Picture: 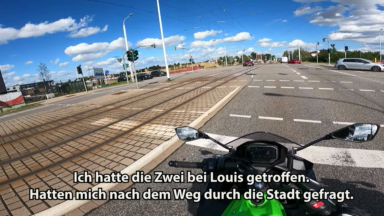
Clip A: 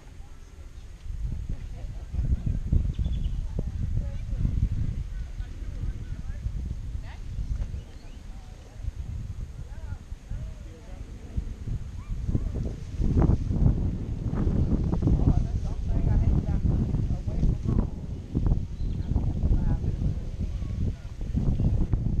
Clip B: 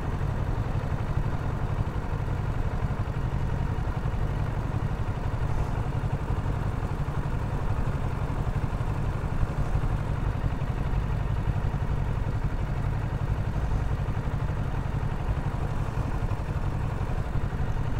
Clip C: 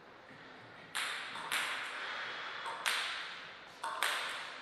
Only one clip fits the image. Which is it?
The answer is B